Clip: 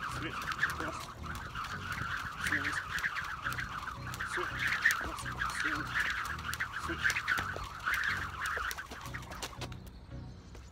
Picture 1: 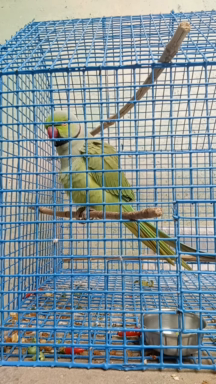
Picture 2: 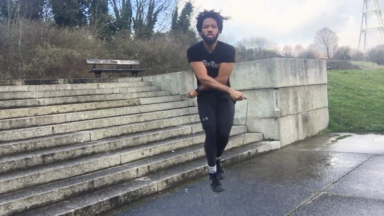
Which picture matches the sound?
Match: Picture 2